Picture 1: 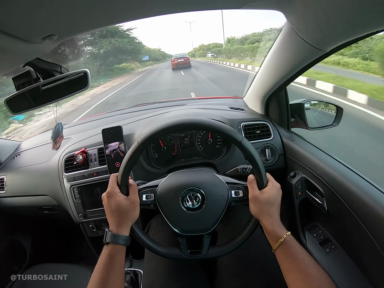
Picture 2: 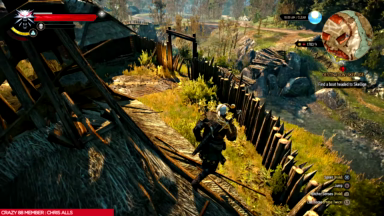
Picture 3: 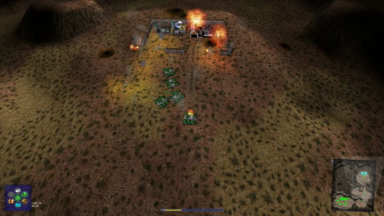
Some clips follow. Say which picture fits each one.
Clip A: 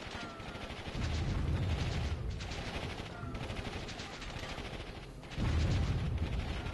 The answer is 3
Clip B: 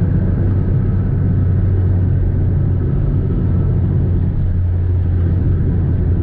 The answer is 1